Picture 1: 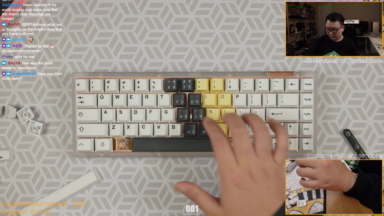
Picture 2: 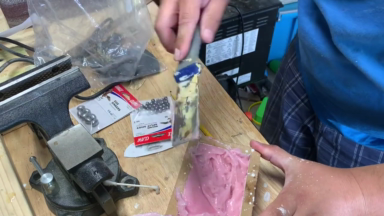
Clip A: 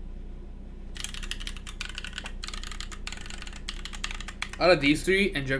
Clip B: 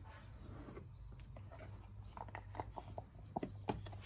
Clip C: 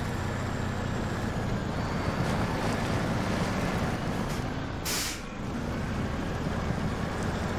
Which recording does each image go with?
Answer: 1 A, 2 B